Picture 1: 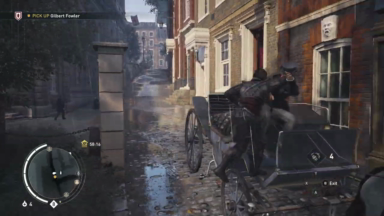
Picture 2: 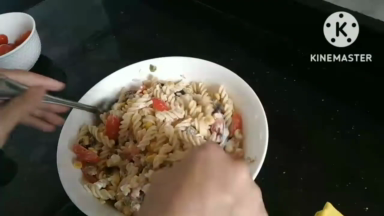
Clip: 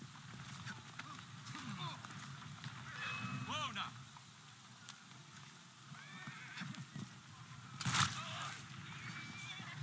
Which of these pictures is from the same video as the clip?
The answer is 1